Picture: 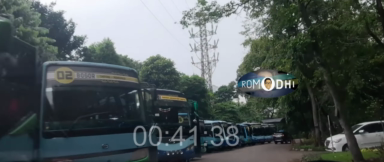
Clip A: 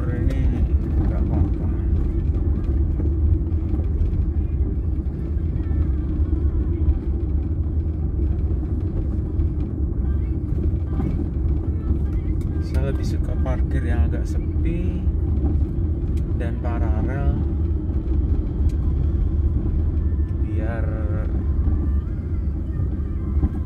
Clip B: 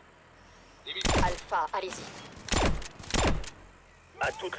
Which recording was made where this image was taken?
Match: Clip A